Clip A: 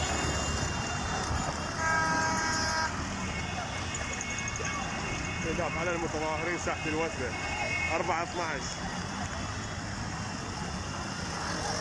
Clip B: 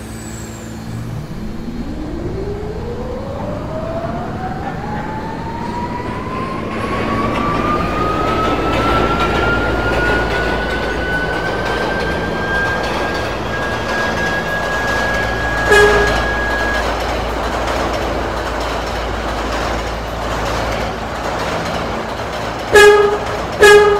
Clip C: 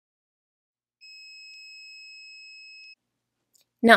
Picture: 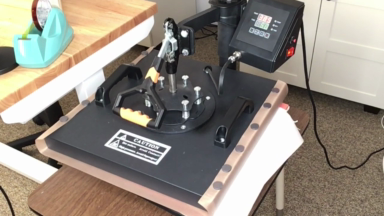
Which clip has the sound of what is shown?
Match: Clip C